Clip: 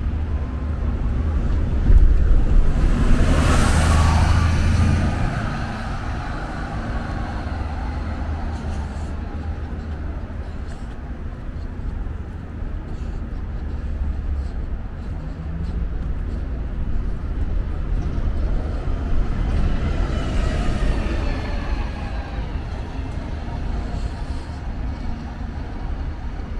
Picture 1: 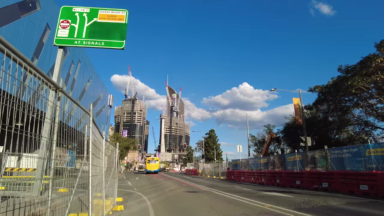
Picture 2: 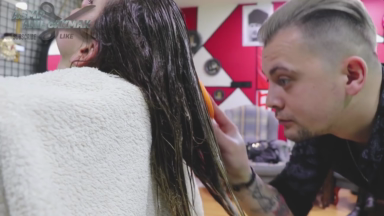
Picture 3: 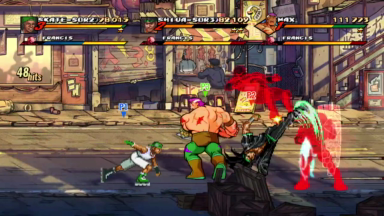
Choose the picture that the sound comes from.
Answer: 1